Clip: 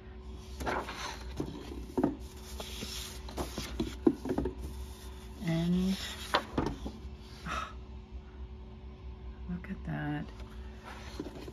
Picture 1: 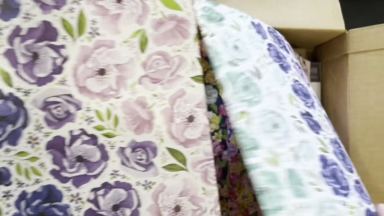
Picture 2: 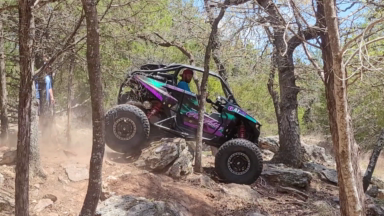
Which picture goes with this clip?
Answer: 1